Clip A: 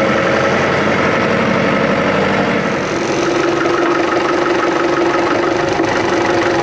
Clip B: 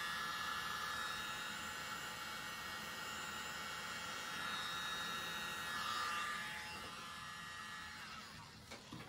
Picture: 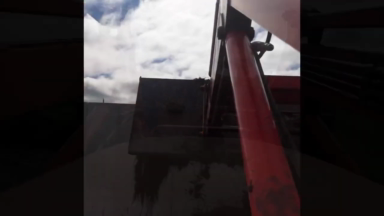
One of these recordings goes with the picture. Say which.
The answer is A